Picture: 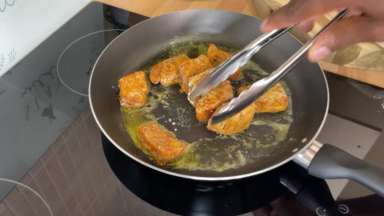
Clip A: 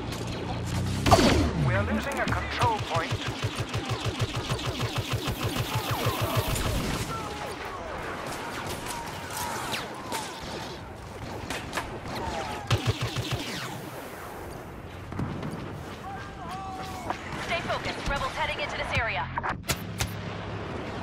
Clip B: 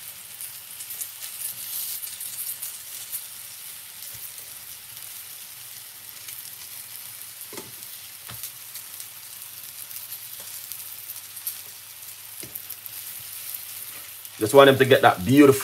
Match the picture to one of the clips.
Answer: B